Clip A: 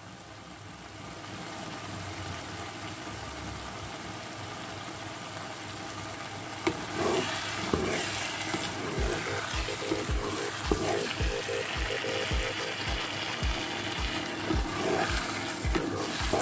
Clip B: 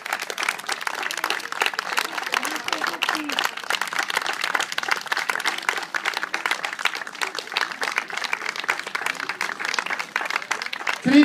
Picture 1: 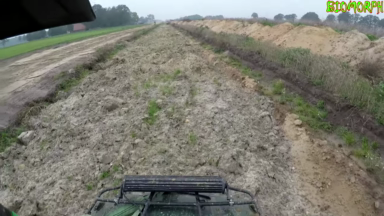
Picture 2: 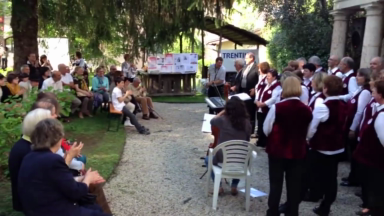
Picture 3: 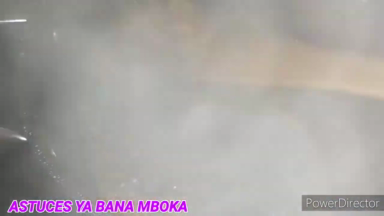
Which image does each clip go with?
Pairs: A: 3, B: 2